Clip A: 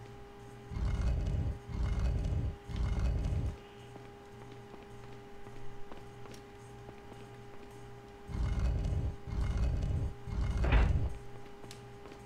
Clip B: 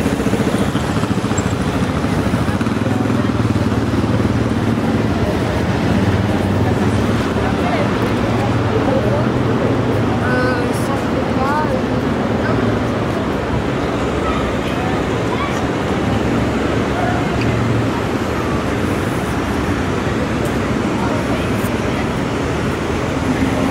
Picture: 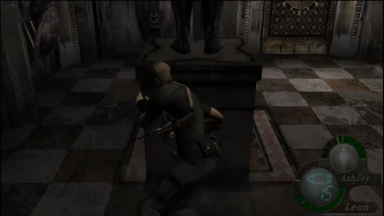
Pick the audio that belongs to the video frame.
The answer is A